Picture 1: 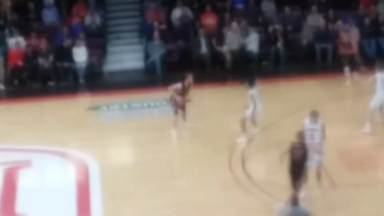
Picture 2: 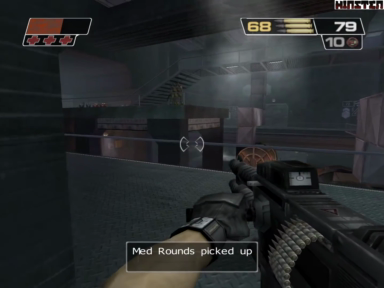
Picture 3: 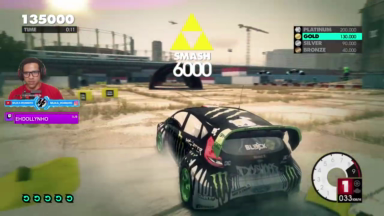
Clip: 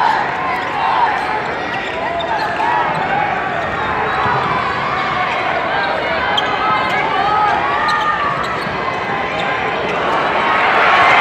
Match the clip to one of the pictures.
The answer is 1